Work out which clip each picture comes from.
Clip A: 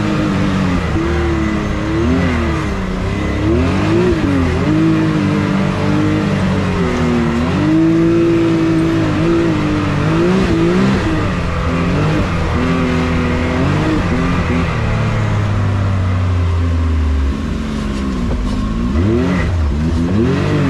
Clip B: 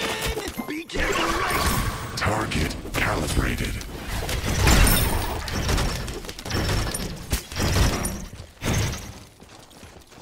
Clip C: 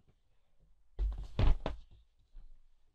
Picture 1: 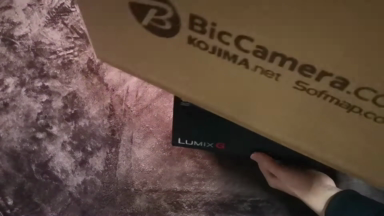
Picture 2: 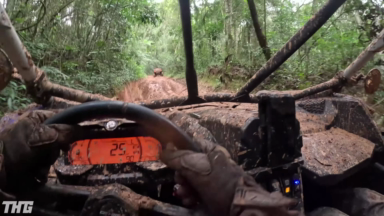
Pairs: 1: C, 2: A